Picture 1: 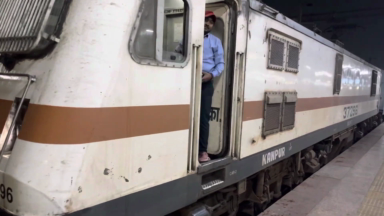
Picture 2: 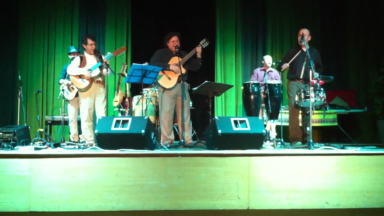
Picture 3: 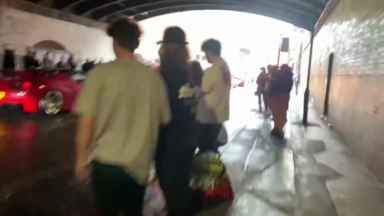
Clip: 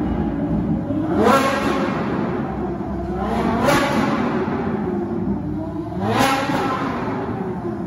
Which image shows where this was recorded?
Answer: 3